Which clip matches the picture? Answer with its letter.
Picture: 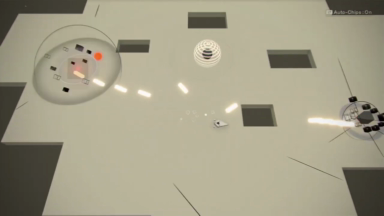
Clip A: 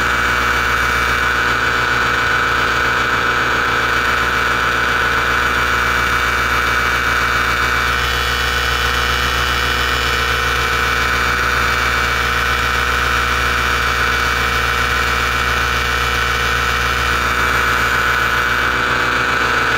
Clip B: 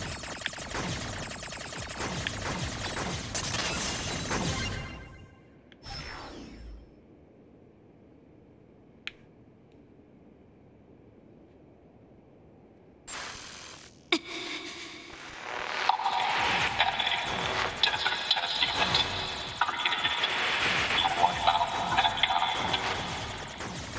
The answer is B